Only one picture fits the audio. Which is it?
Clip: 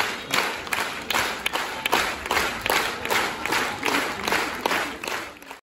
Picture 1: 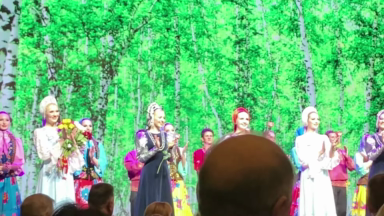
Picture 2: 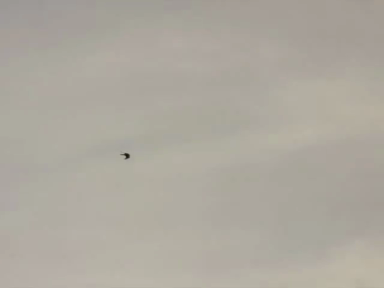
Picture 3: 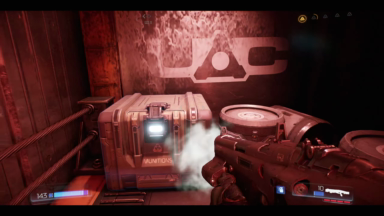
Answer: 1